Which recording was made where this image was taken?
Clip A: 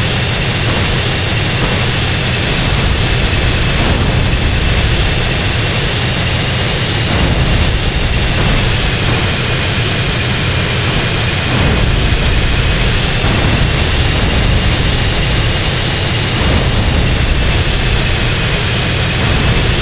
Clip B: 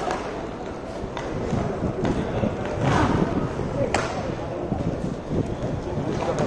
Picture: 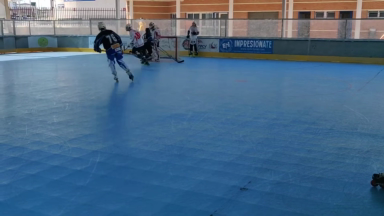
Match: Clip B